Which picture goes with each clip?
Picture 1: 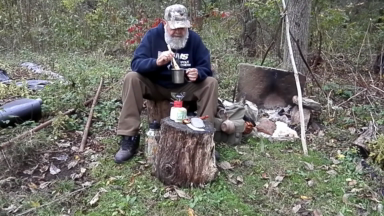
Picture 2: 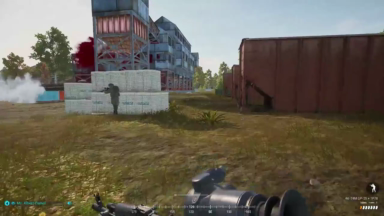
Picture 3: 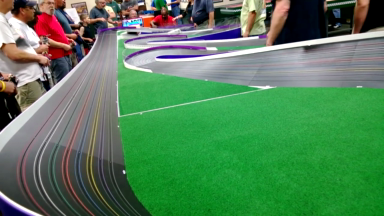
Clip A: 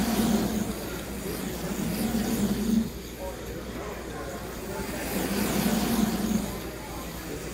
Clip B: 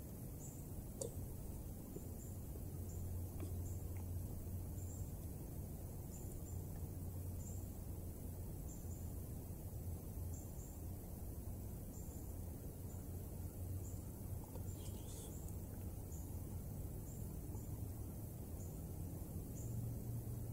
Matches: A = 3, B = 1